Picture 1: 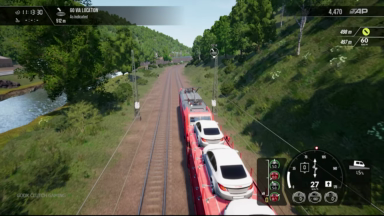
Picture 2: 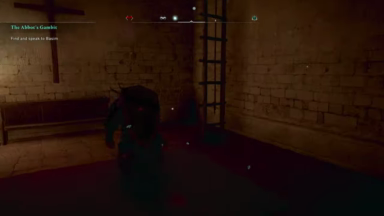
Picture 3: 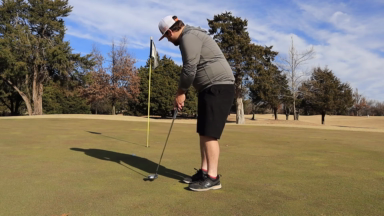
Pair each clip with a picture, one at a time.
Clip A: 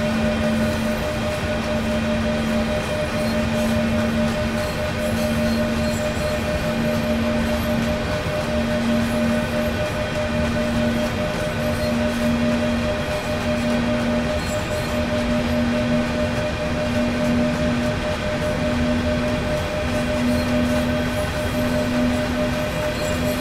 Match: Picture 1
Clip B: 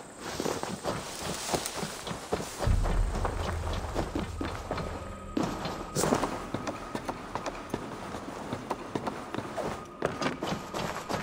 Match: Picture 2